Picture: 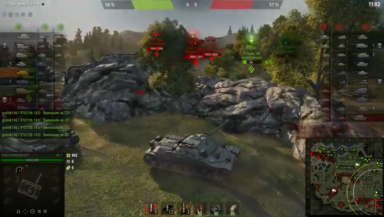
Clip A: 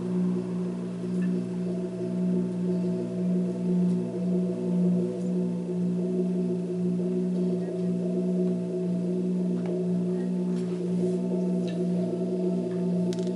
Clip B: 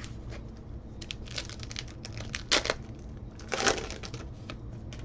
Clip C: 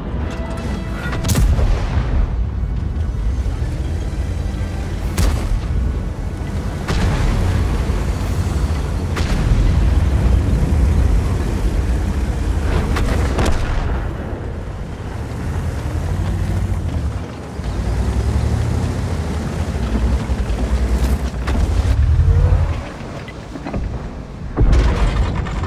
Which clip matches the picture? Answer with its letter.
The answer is C